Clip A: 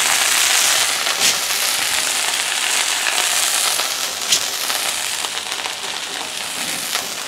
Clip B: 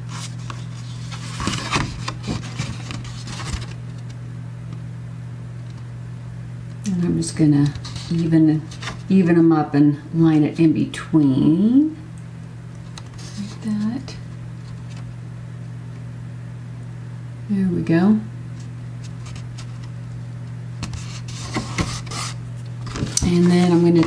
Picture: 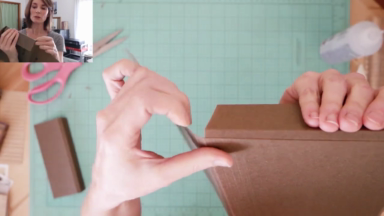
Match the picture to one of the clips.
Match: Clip B